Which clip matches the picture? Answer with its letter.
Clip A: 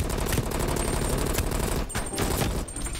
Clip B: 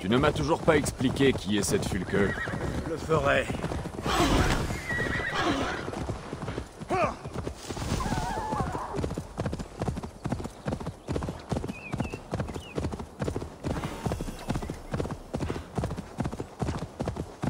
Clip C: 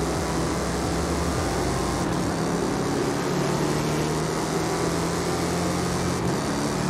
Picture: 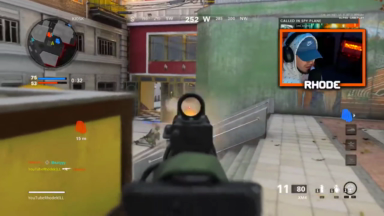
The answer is A